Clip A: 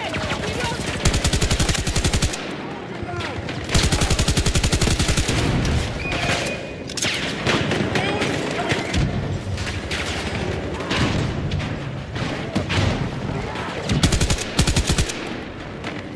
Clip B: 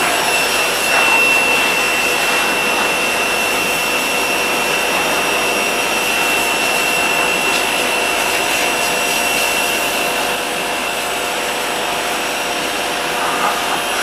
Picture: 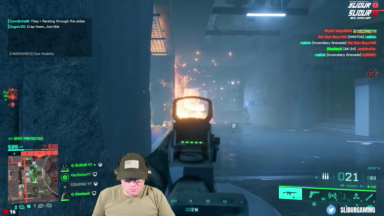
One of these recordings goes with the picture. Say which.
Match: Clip A